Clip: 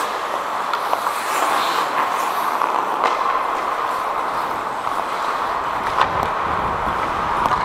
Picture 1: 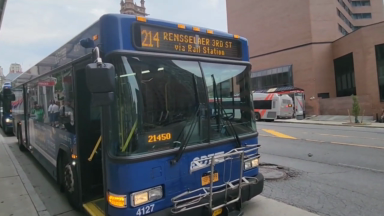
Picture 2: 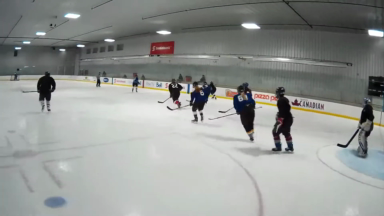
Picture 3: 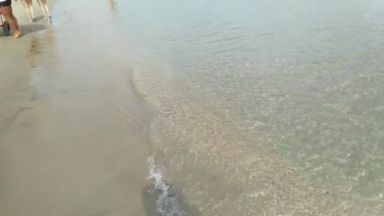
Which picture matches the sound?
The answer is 2